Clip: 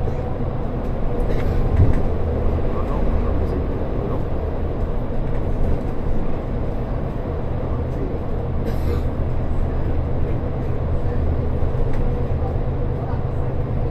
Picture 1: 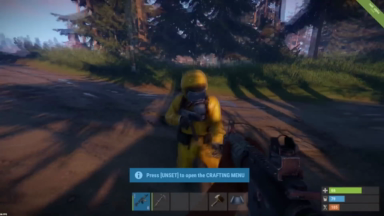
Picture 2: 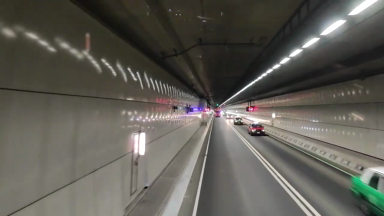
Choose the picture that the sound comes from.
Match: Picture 2